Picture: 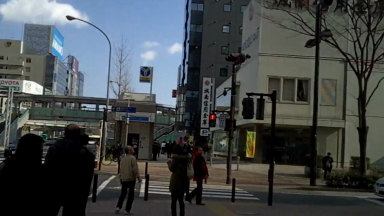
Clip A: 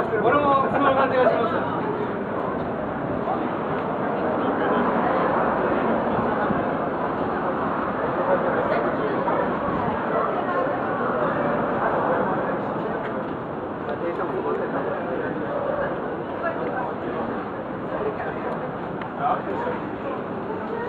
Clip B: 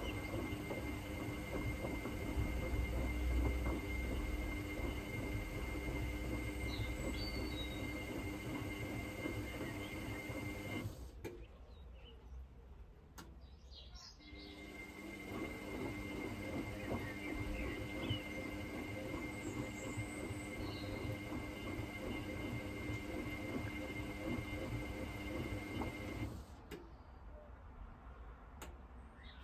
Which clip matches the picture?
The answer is A